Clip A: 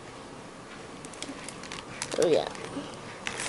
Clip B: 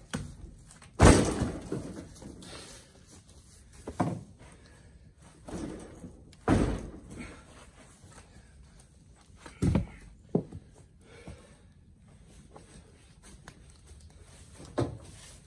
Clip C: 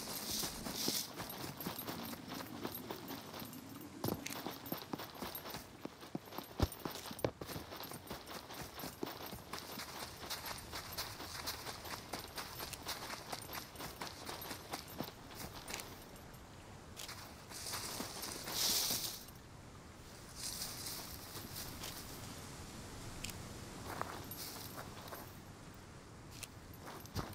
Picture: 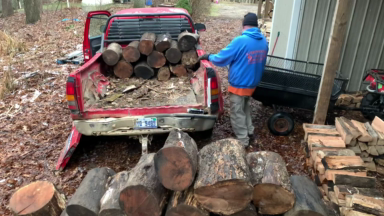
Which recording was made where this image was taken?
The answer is B